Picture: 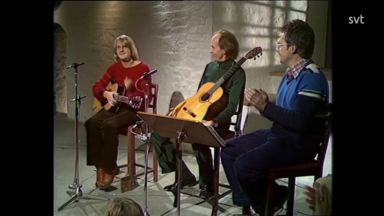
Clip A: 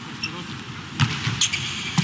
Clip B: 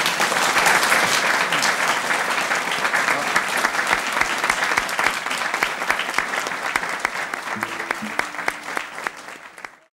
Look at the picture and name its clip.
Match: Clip B